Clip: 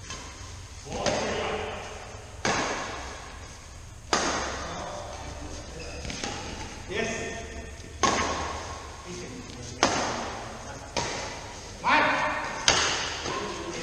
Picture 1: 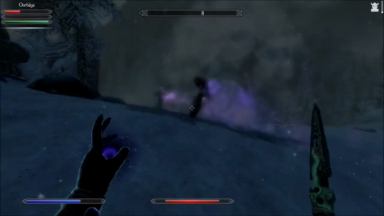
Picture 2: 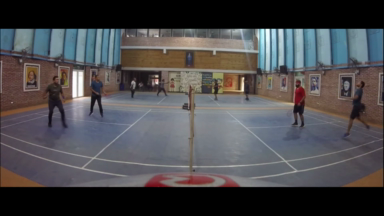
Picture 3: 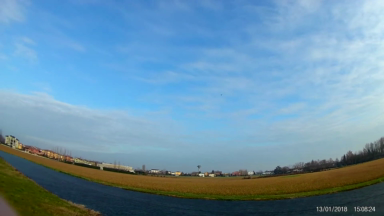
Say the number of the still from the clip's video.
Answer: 2